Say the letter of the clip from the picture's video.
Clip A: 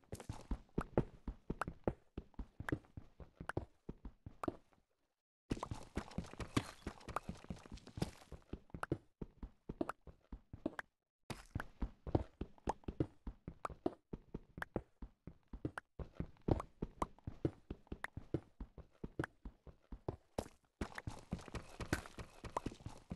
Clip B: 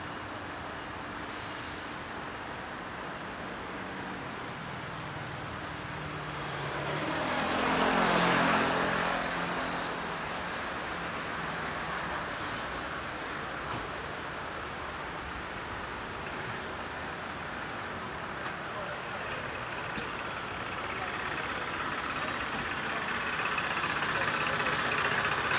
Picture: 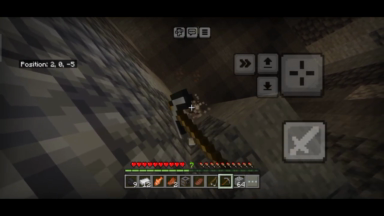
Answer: A